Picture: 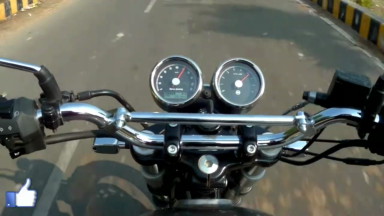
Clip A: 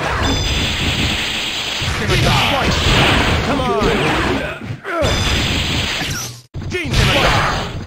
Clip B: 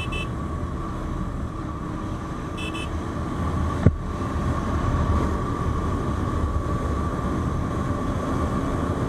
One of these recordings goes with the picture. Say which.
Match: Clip B